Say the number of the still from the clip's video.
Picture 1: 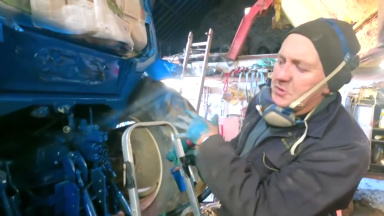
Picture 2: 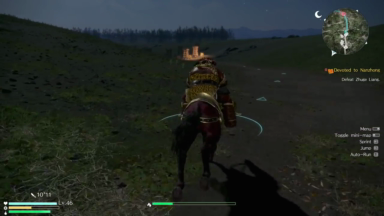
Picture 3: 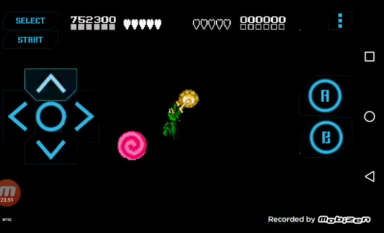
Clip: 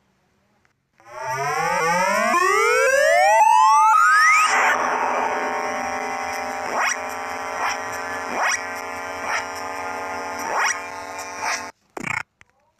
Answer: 3